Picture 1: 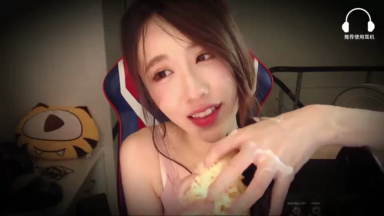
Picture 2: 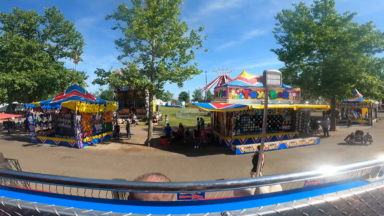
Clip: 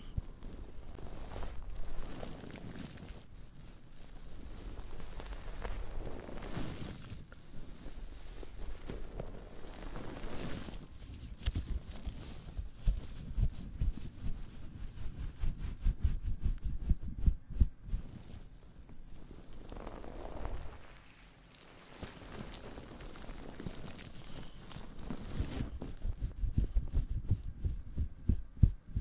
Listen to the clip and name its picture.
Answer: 1